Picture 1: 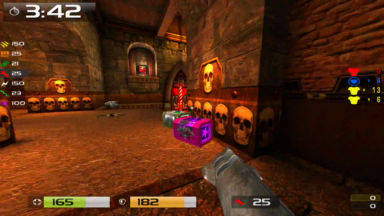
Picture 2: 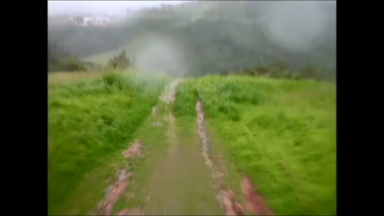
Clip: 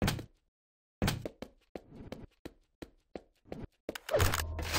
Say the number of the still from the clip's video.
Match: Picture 1